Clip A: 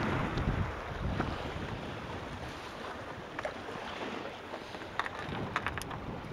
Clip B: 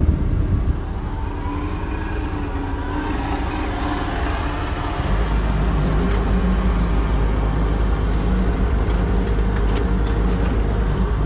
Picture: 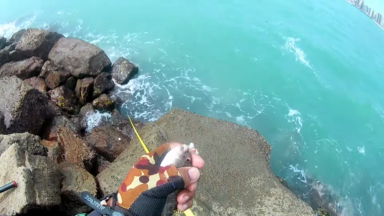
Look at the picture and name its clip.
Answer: A